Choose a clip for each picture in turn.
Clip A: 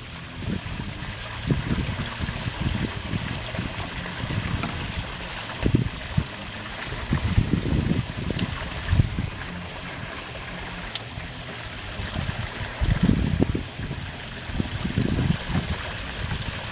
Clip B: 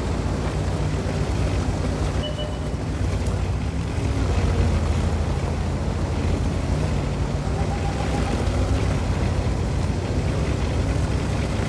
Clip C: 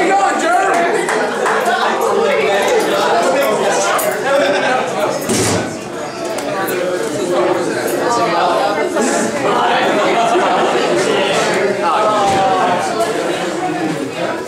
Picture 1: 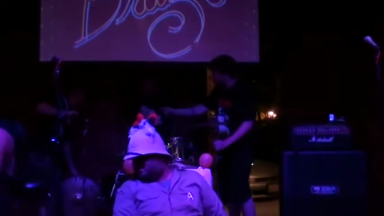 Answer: C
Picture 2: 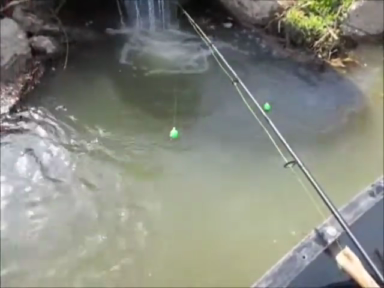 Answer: A